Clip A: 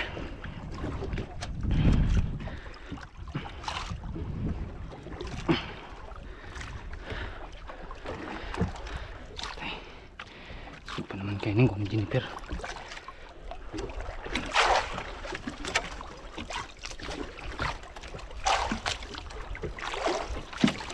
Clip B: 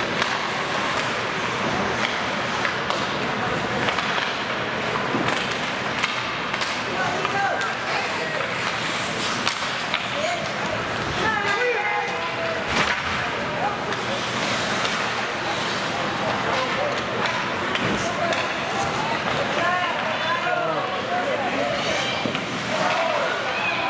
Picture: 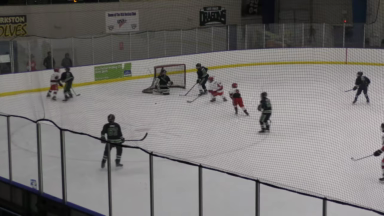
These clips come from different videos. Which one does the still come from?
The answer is B